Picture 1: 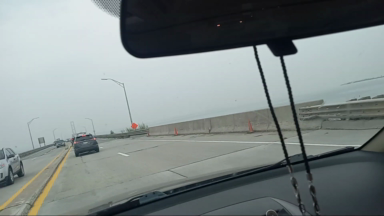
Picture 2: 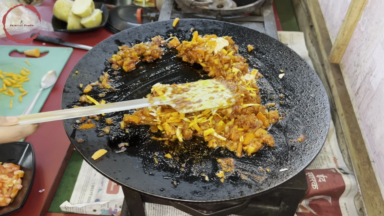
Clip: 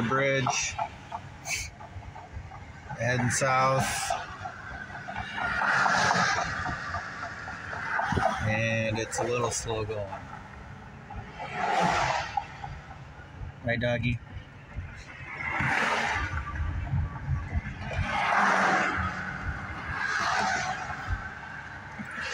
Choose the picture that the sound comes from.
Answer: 1